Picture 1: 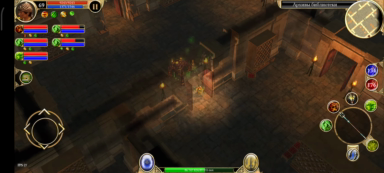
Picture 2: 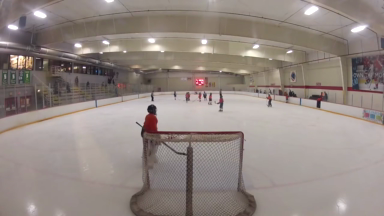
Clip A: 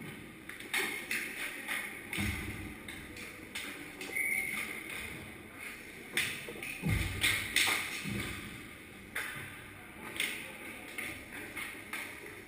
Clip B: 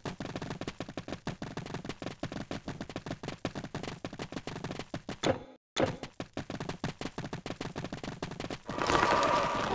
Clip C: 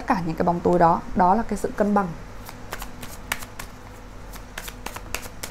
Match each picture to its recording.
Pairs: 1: B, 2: A